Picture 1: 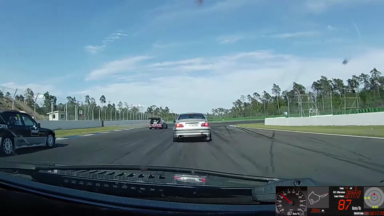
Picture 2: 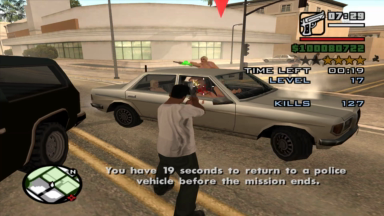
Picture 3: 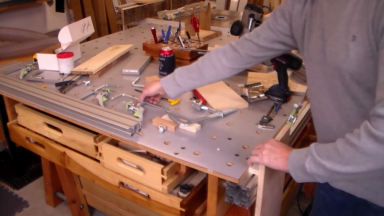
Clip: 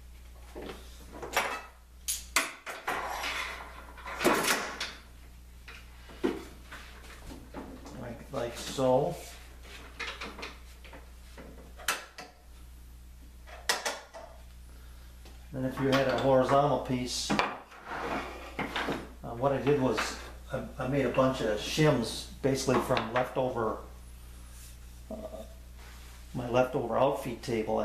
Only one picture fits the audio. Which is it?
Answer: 3